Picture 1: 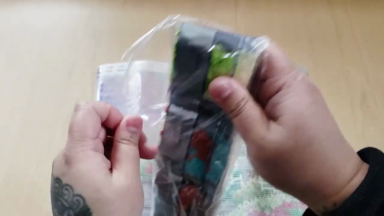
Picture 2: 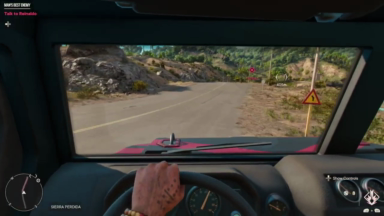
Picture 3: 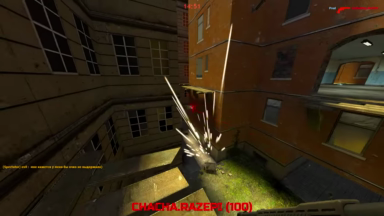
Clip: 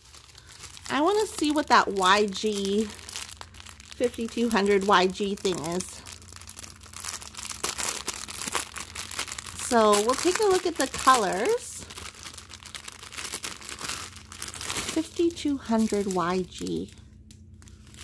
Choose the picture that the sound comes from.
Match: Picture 1